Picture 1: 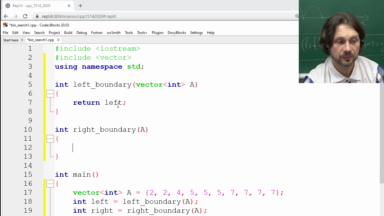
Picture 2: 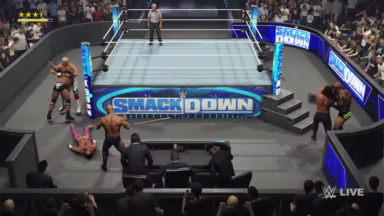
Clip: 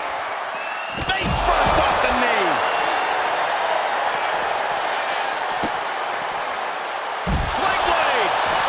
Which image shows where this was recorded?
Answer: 2